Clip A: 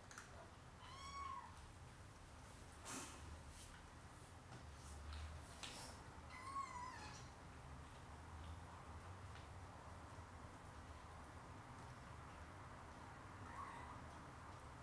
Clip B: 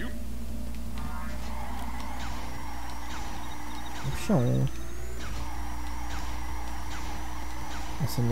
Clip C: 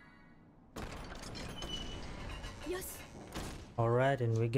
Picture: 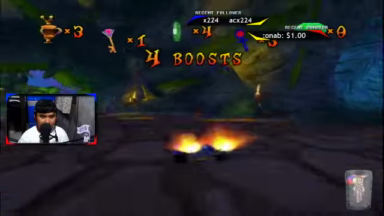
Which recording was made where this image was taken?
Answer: B